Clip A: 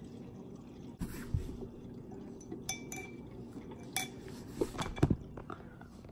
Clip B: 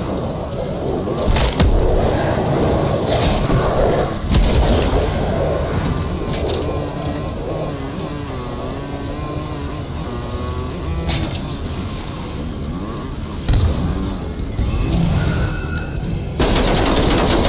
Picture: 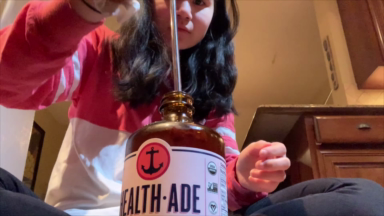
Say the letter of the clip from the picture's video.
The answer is A